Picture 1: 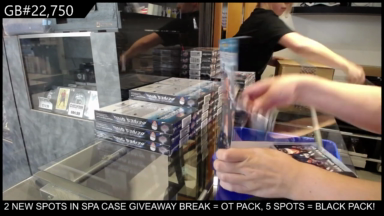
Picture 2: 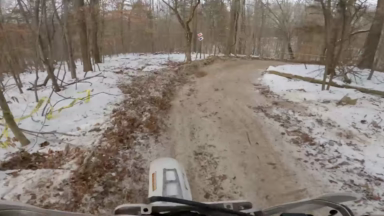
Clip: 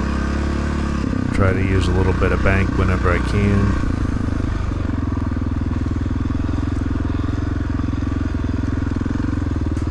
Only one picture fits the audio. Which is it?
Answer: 2